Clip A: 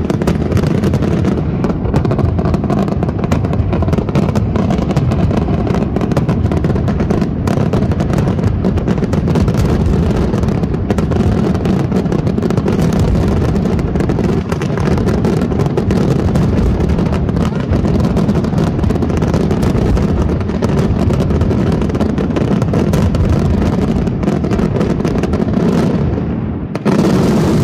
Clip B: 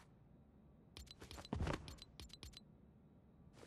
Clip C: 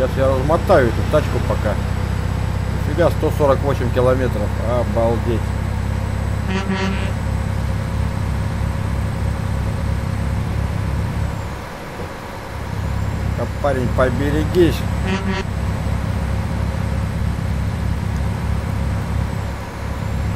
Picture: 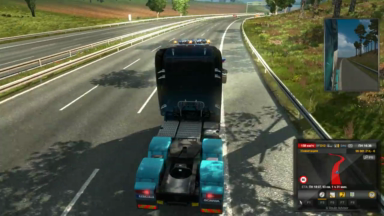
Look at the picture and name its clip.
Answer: C